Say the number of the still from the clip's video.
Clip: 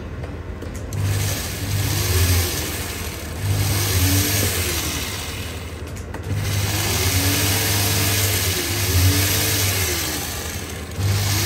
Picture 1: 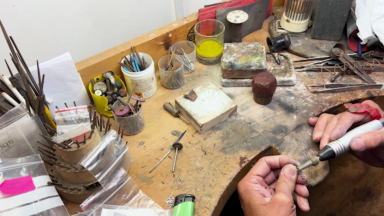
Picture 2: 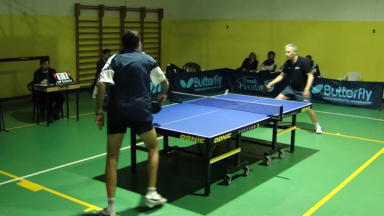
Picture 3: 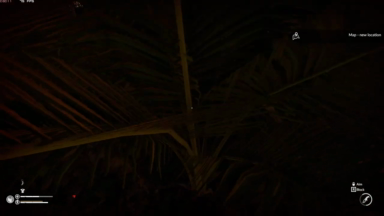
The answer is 1